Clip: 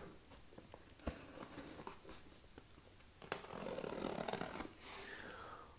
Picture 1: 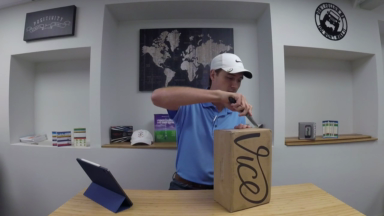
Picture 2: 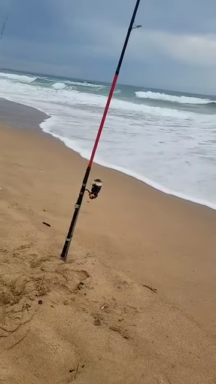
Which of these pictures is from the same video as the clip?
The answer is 1